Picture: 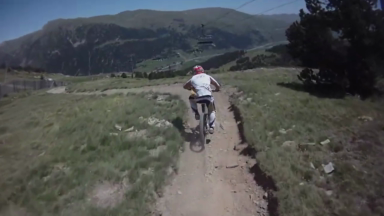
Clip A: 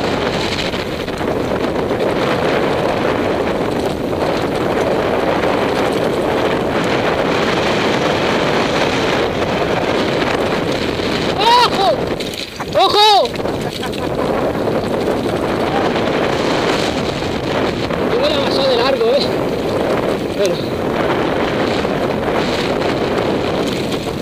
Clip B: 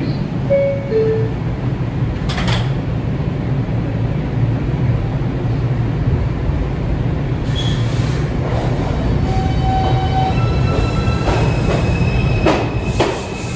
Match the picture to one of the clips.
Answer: A